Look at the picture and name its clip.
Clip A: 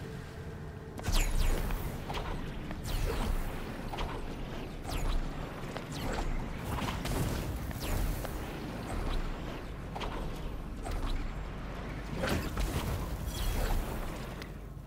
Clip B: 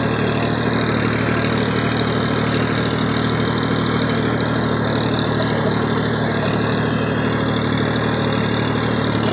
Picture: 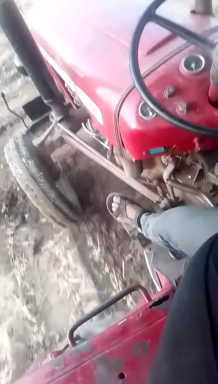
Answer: B